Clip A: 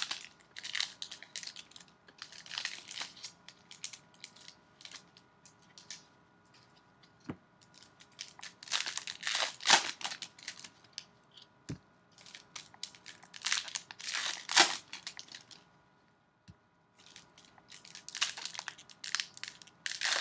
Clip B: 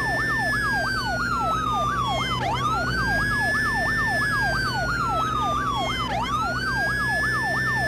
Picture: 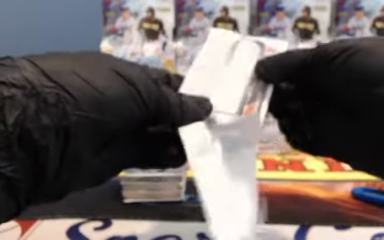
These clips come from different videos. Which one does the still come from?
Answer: A